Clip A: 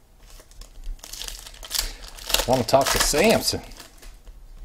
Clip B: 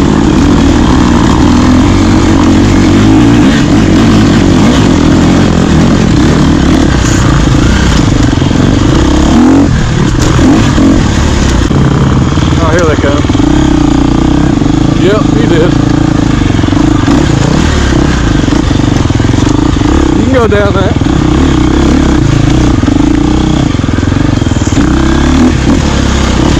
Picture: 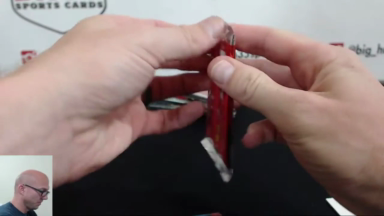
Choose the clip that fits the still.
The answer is A